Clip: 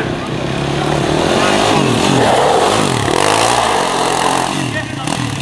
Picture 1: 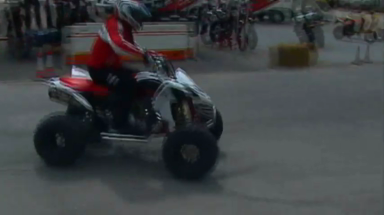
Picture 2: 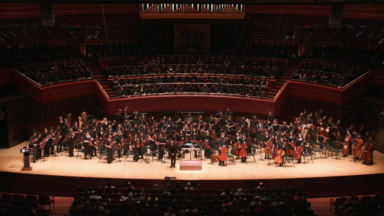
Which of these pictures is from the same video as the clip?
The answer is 1